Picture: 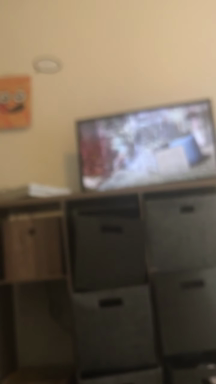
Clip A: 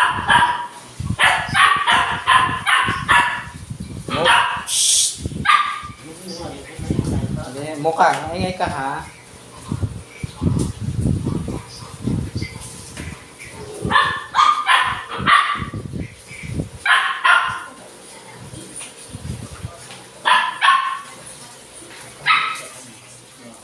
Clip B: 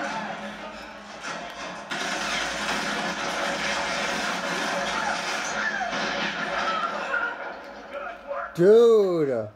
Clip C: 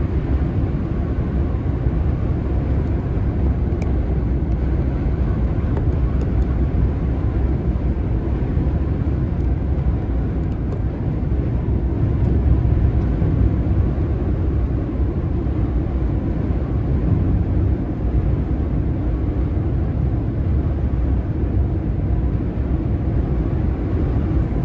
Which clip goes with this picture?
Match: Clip B